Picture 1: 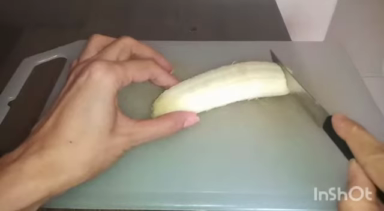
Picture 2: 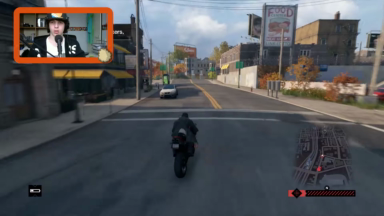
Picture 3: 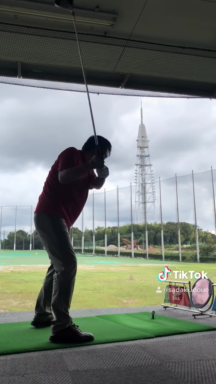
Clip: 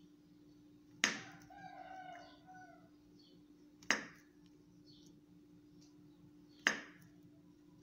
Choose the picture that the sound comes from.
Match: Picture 1